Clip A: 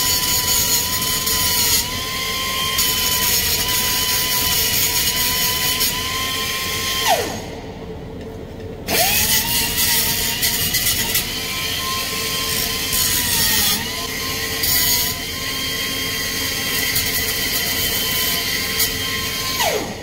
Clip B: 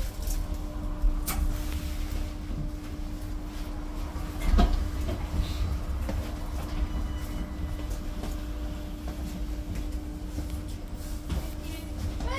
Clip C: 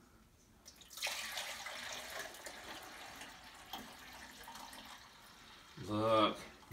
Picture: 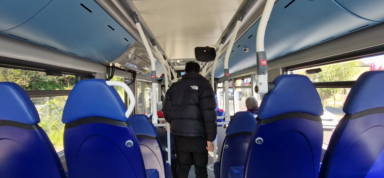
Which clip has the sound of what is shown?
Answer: B